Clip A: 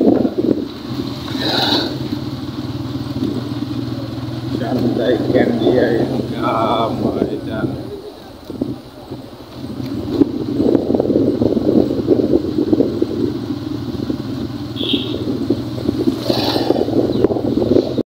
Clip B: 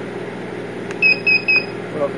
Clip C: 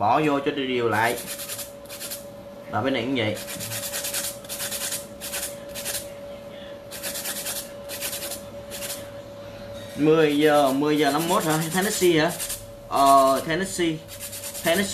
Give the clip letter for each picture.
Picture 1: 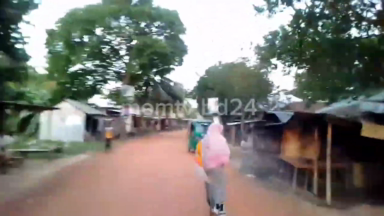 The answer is A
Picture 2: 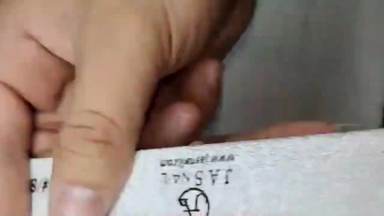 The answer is C